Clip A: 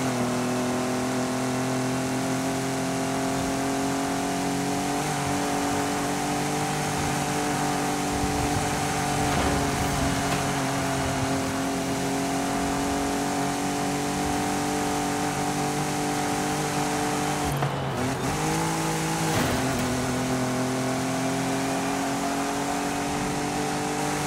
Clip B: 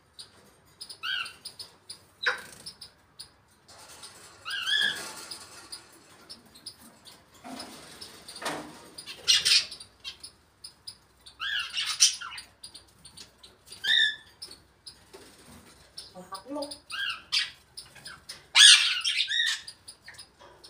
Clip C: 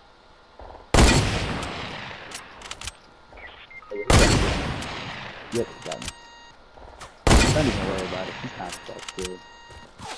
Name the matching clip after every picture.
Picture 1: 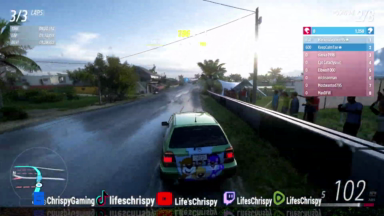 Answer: A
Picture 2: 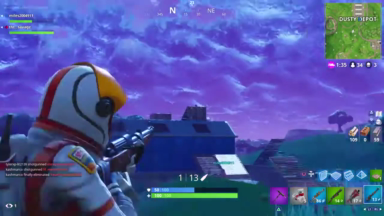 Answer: C